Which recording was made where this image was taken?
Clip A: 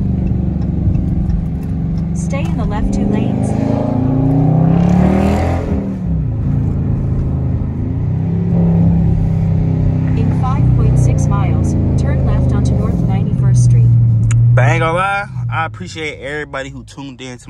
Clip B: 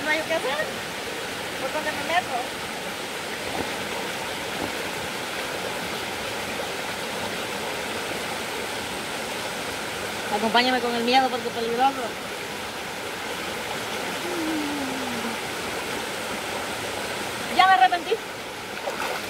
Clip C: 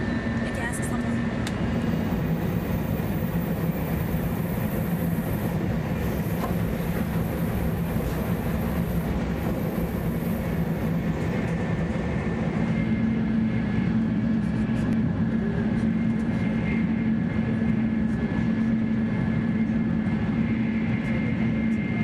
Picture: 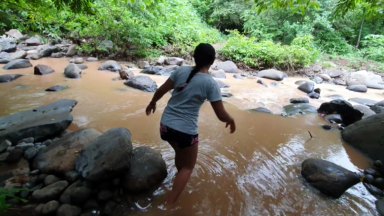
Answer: B